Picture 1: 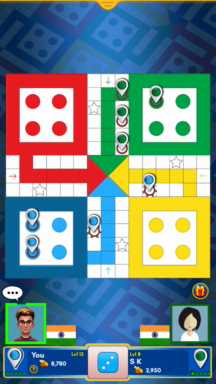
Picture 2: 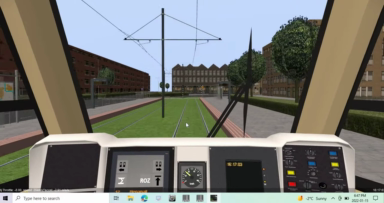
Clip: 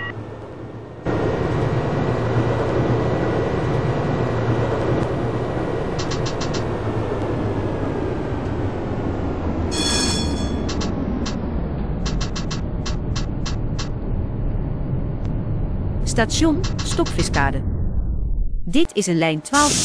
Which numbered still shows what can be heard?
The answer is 2